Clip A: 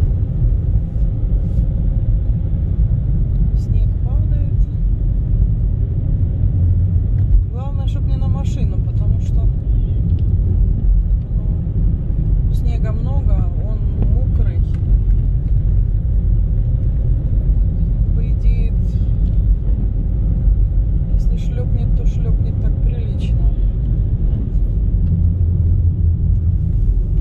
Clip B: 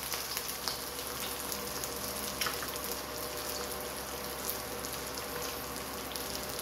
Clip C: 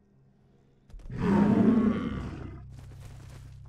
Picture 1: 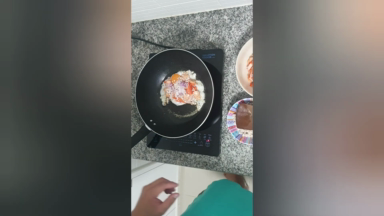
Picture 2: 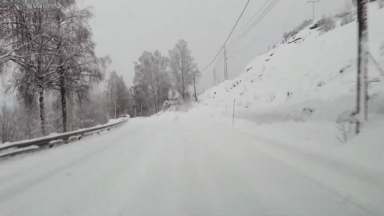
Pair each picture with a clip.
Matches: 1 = B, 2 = A